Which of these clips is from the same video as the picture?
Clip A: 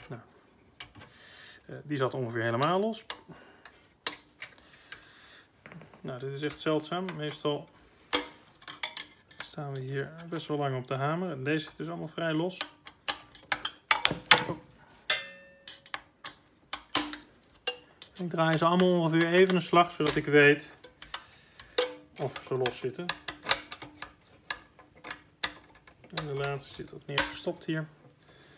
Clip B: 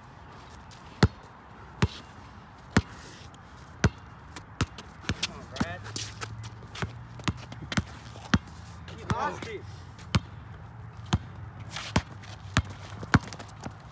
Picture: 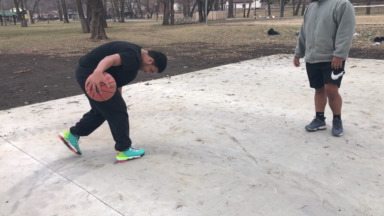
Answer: B